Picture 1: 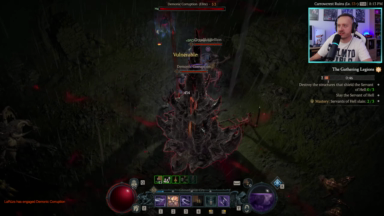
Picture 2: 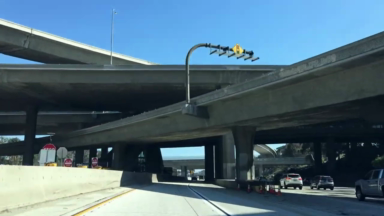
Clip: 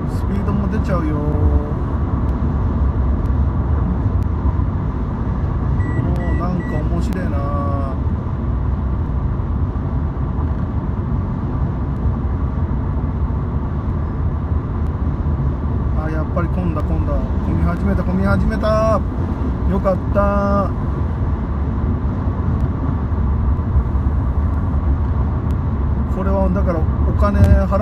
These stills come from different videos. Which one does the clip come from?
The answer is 2